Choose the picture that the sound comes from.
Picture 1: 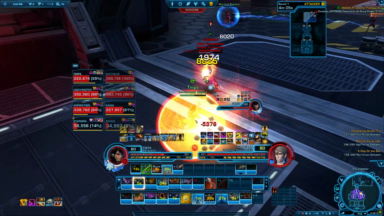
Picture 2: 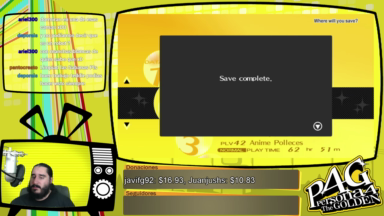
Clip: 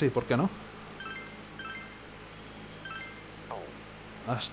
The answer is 2